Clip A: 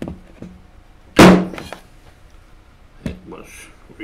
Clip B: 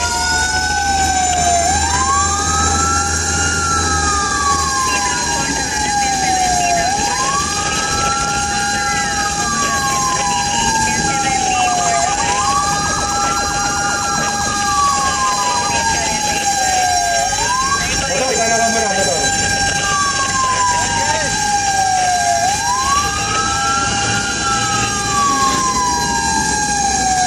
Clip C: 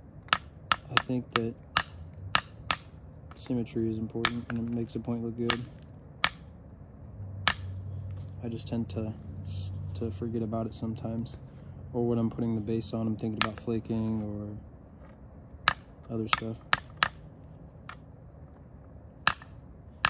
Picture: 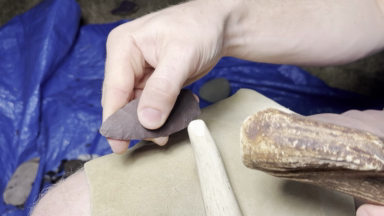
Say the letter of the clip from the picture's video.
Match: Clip C